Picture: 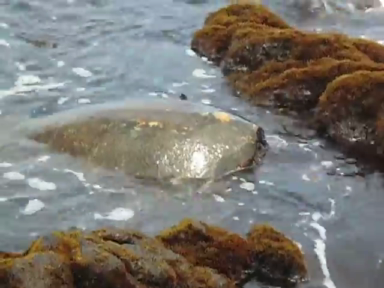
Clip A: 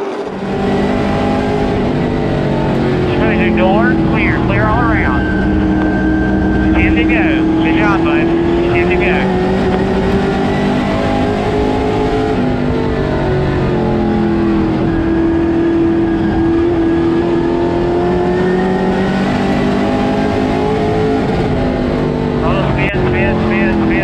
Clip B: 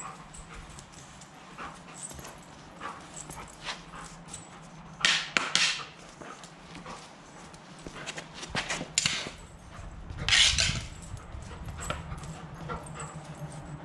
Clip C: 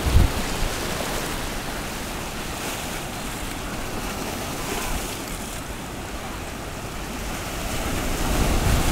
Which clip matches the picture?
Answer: C